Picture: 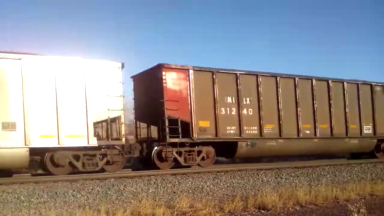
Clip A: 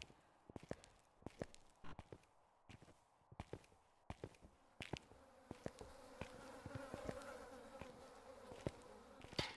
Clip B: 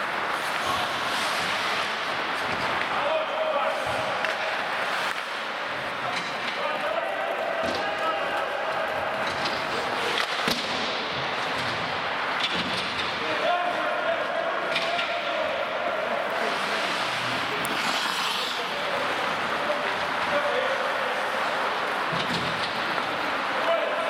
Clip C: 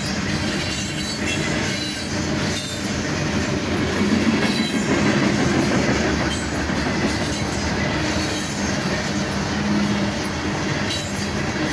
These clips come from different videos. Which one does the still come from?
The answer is C